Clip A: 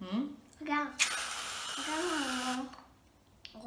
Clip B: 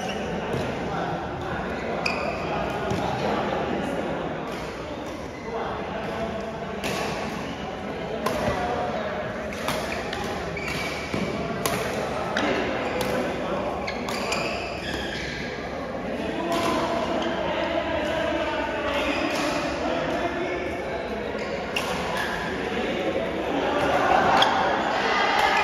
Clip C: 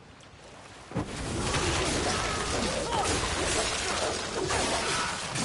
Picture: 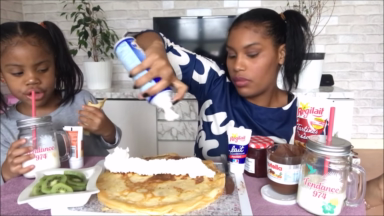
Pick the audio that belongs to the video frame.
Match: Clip A